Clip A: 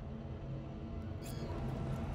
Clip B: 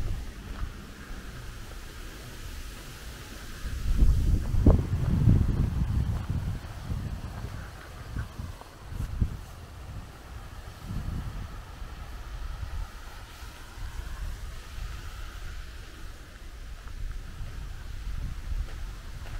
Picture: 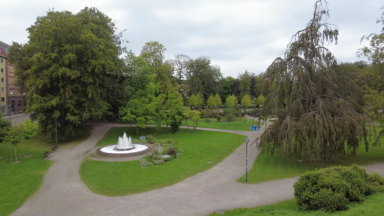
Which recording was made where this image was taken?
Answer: B